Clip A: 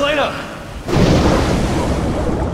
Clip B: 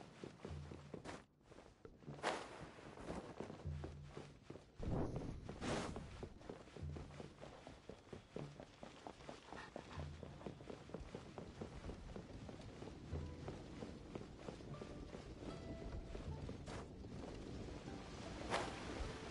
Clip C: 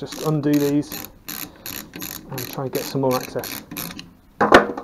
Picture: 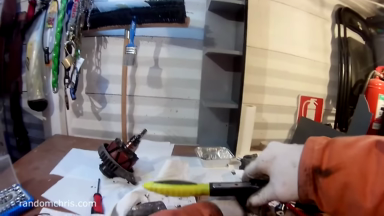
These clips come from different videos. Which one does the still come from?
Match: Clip C